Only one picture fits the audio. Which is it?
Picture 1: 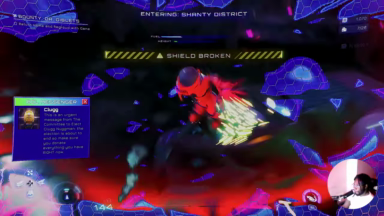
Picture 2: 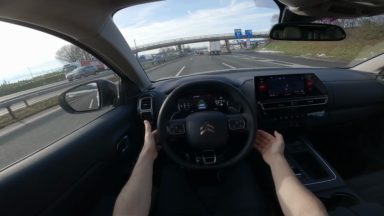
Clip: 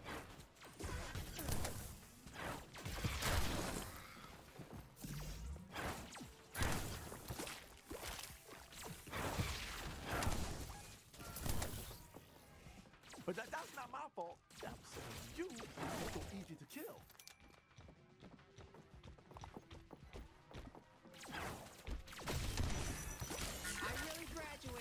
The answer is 1